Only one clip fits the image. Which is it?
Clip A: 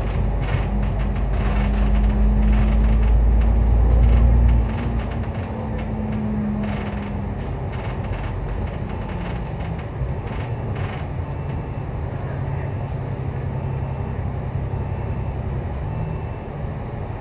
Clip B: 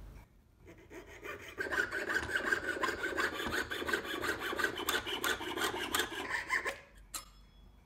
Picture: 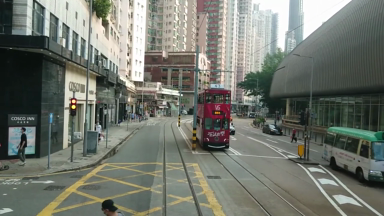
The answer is A